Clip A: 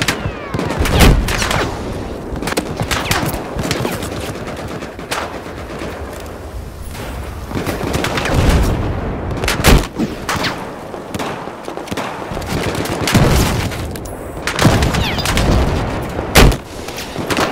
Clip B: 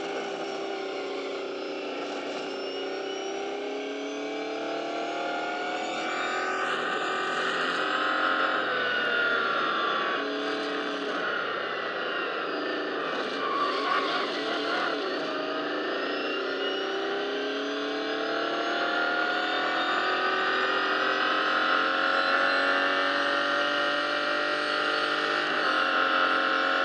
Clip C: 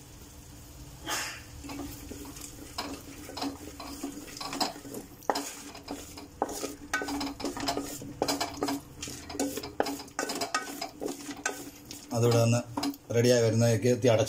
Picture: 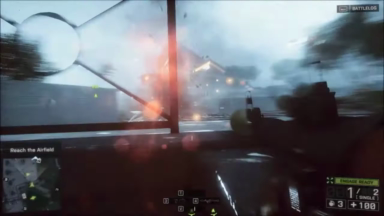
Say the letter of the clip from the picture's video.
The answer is A